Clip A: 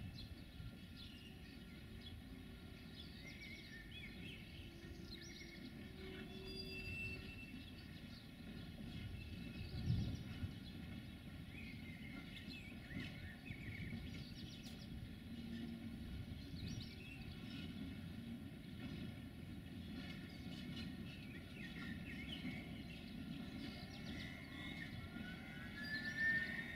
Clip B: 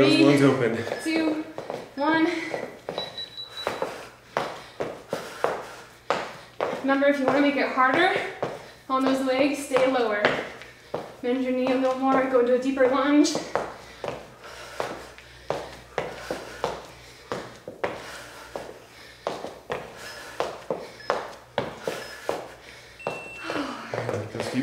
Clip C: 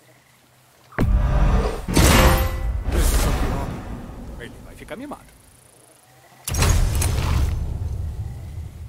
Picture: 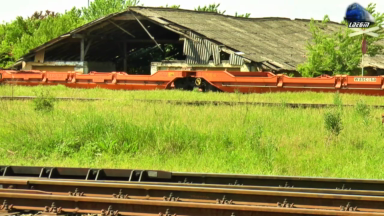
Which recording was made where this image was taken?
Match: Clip A